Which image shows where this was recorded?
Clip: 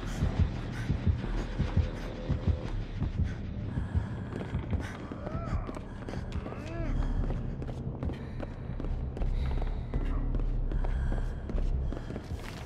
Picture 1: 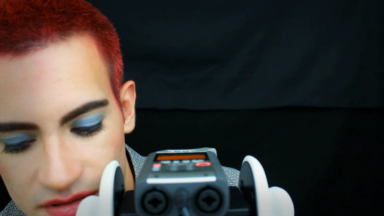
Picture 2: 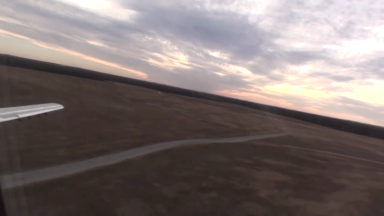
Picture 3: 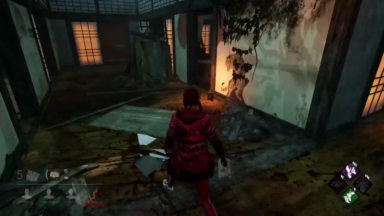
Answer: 3